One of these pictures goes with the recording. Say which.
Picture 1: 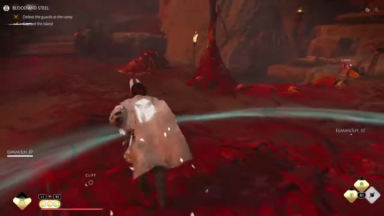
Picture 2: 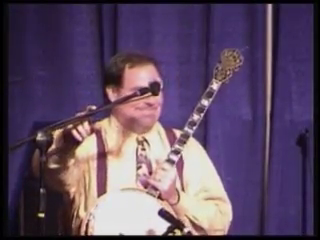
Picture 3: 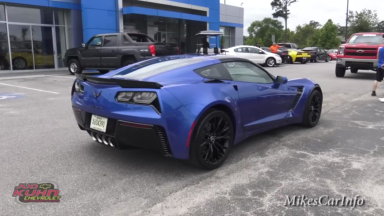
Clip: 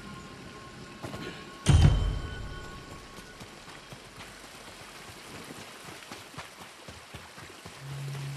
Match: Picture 1